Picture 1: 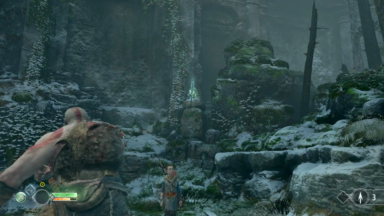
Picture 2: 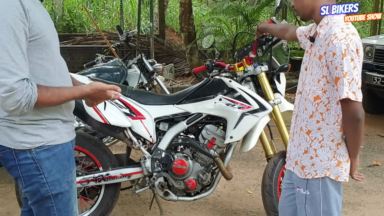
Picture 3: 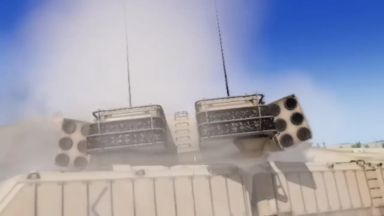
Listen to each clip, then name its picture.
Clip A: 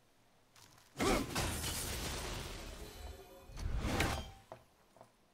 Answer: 1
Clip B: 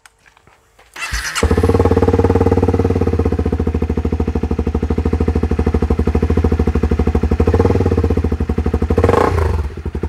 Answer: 2